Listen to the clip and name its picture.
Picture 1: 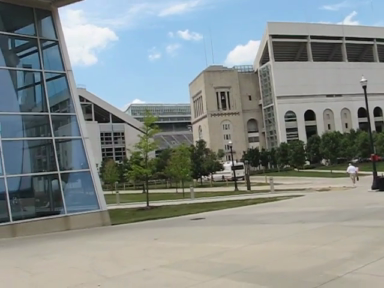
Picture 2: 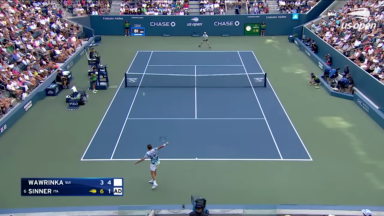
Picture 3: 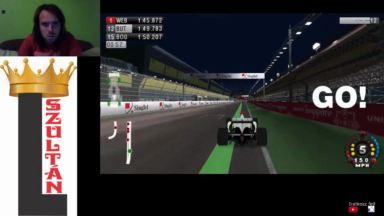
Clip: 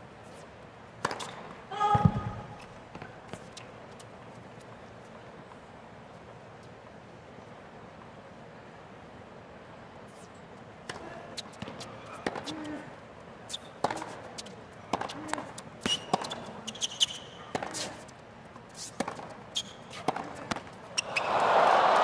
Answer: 2